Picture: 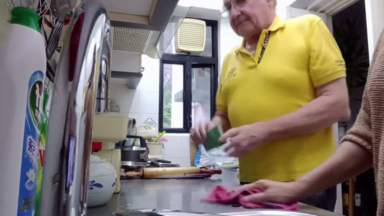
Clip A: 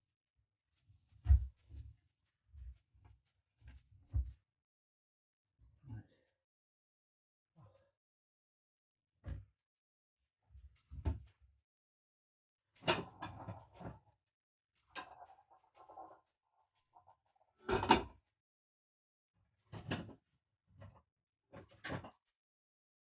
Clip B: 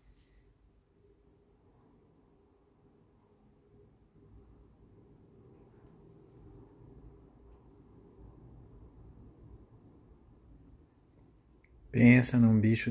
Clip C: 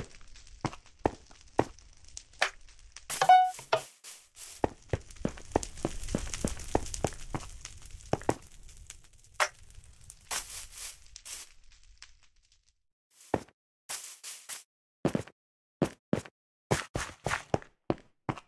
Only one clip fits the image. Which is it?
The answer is A